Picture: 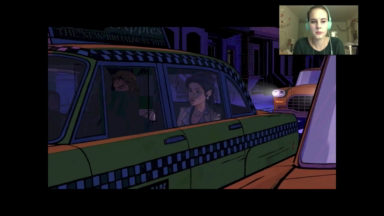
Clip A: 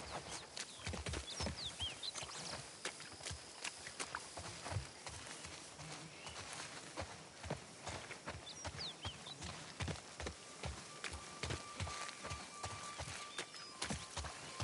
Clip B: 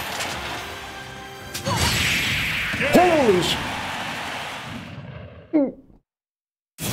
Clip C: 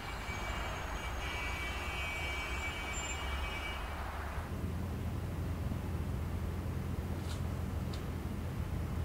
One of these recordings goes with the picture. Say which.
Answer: C